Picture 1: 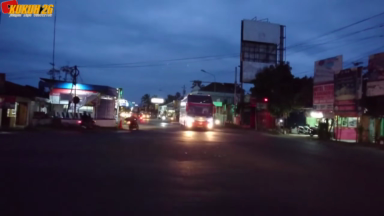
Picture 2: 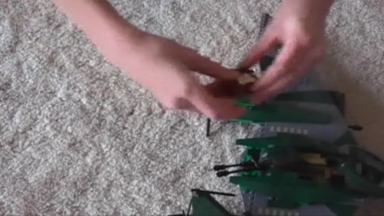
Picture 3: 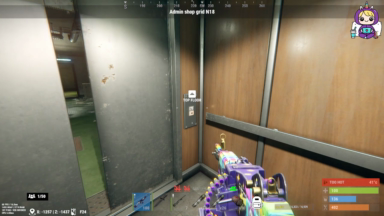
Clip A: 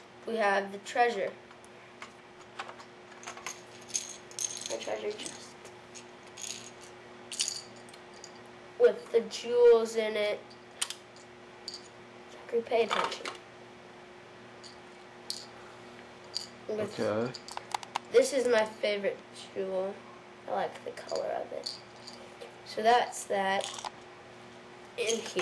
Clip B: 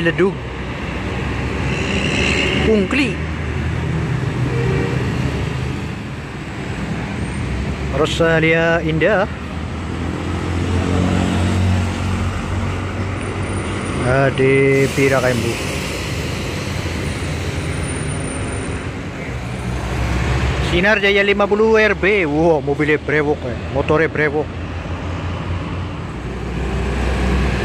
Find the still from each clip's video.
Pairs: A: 2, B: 1